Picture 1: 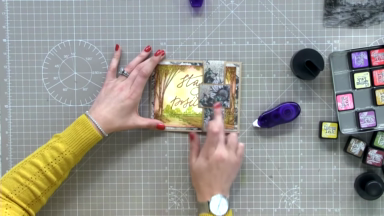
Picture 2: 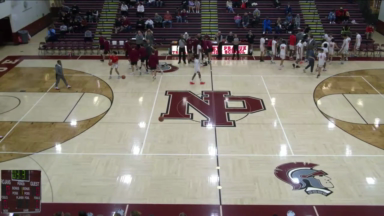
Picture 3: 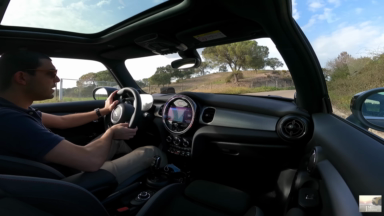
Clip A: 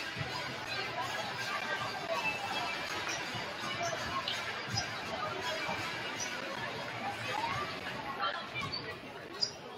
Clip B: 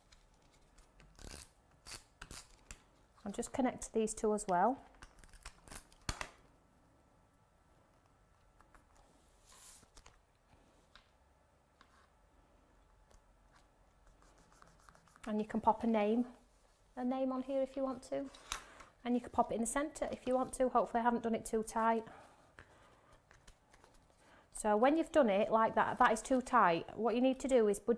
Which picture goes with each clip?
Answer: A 2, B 1